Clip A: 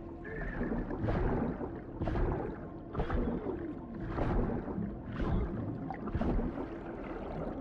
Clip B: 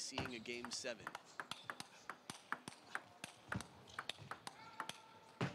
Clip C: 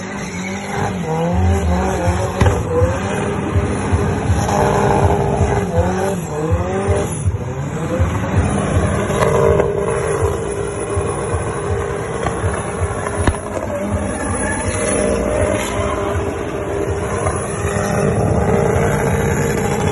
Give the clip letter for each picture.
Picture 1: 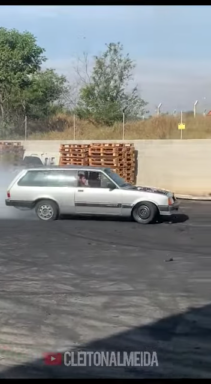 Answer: C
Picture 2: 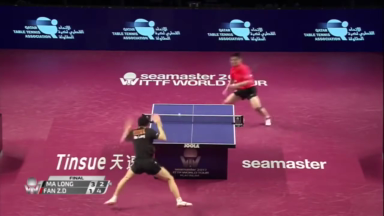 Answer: B